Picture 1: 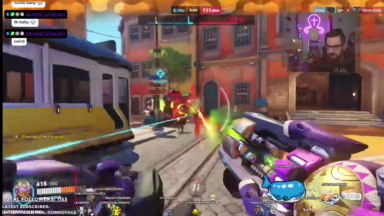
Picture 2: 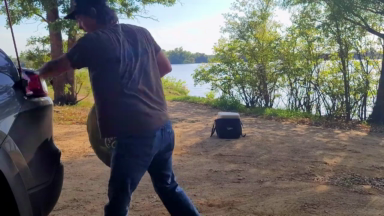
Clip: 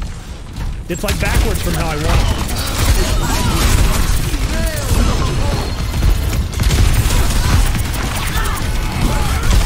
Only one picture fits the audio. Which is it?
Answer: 1